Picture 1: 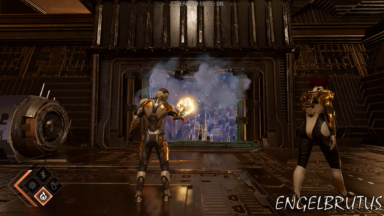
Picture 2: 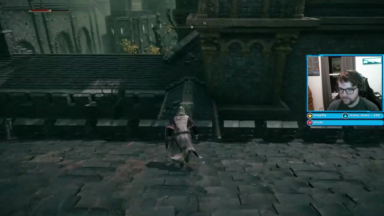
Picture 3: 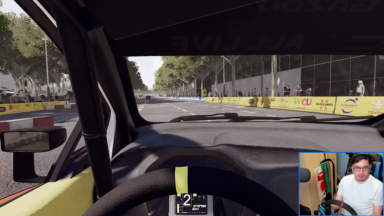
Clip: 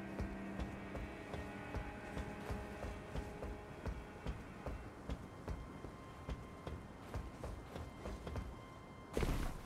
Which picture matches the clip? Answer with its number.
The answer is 2